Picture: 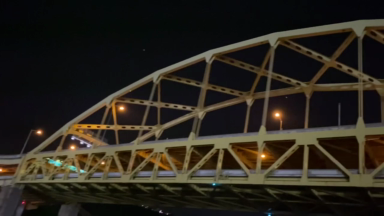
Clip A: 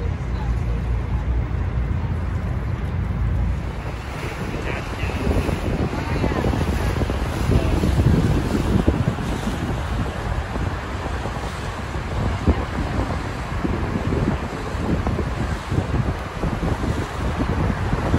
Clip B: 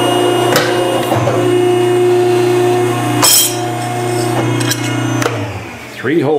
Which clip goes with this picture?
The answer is A